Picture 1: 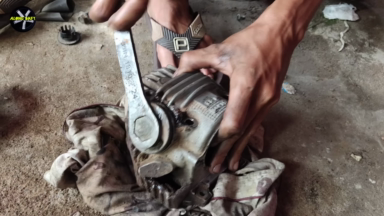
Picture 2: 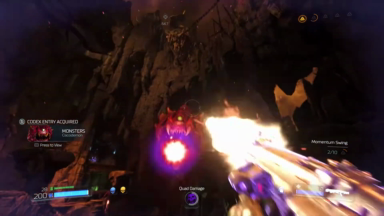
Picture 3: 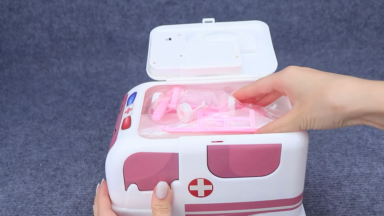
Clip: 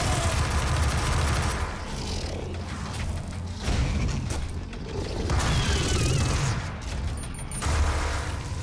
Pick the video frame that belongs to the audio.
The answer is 2